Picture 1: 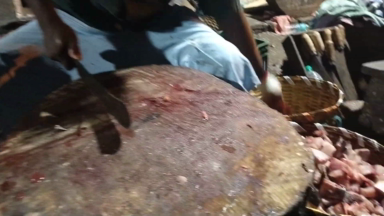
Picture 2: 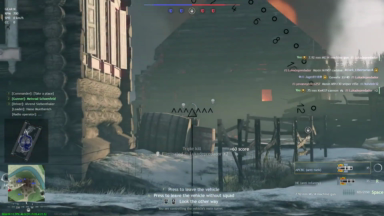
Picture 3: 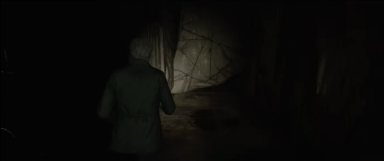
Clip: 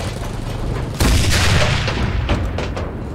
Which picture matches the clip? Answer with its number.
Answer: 2